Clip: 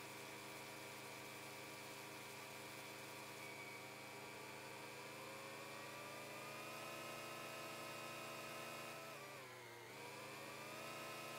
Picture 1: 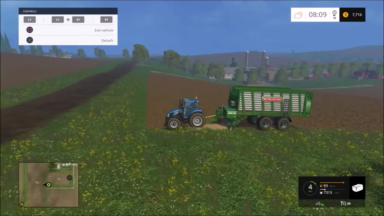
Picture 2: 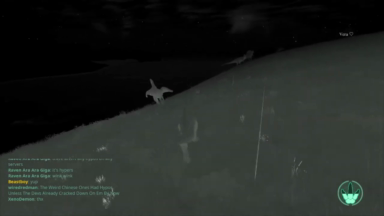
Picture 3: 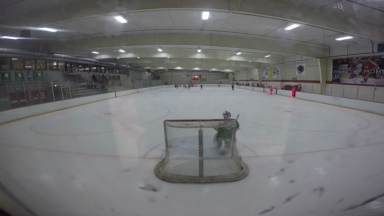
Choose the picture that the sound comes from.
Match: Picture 1